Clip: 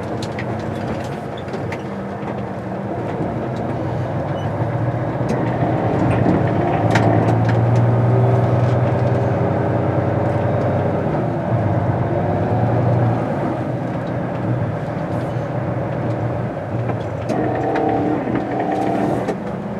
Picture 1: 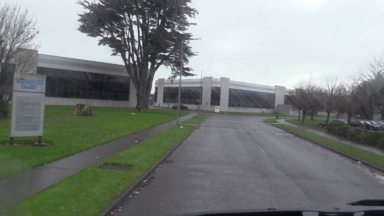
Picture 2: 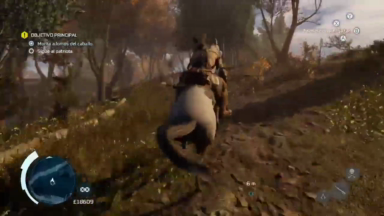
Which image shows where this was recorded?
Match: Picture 1